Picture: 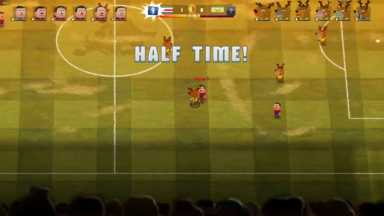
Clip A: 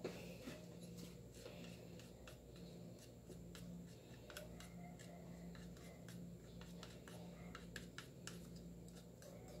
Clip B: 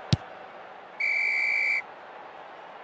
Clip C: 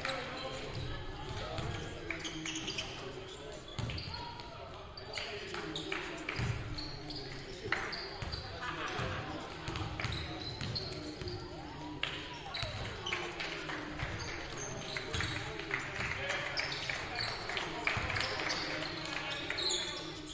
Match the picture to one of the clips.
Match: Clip B